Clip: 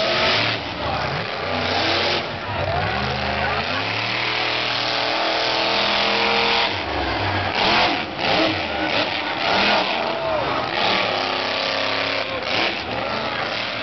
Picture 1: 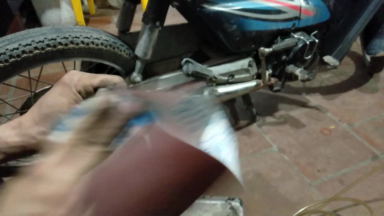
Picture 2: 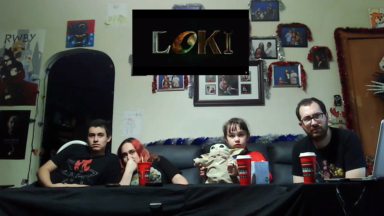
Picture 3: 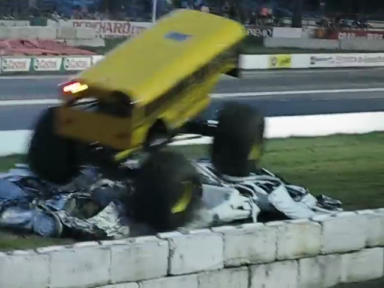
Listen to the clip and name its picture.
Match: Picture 3